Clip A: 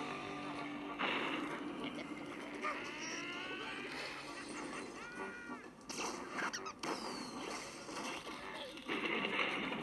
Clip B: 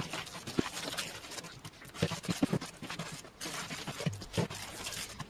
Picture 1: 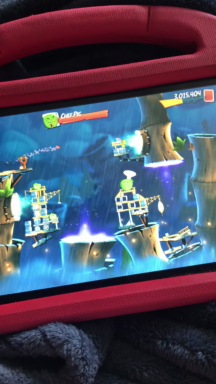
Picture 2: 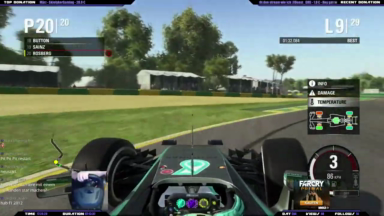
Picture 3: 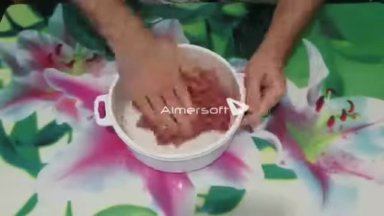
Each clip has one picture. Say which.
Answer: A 1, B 3